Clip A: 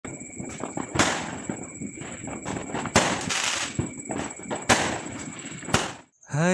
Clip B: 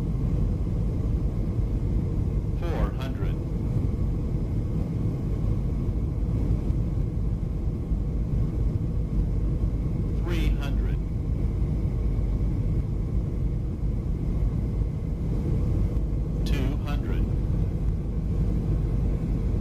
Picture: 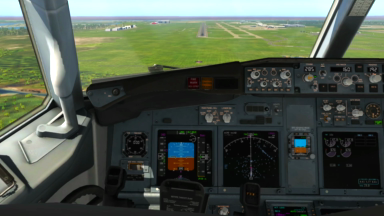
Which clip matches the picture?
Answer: B